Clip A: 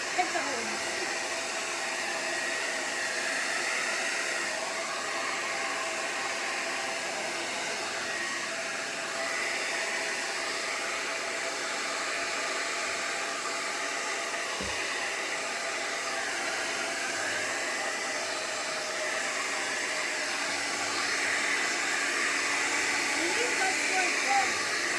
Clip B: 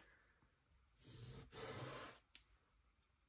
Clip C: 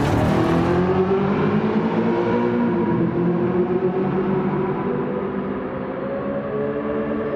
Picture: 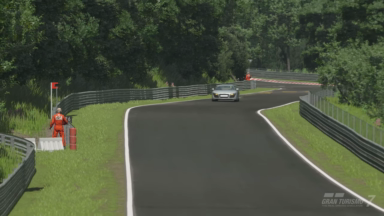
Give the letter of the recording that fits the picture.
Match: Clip C